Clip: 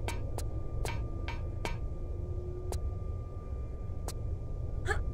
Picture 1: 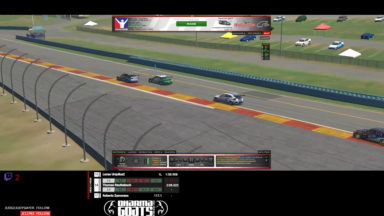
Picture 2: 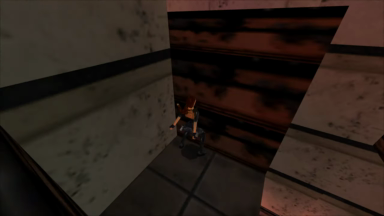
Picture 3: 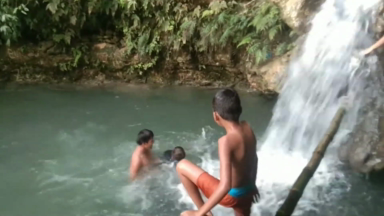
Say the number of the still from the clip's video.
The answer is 2